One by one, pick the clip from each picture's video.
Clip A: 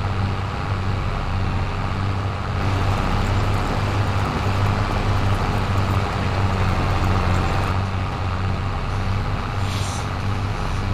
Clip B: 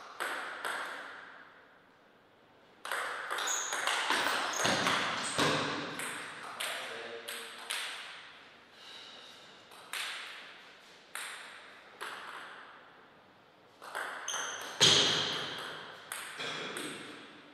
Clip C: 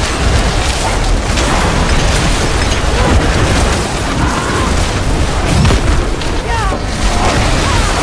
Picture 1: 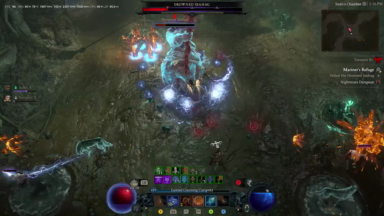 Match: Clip C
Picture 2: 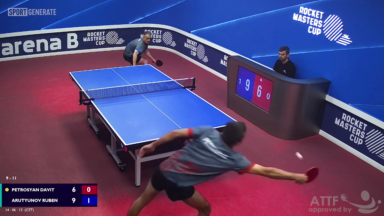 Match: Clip B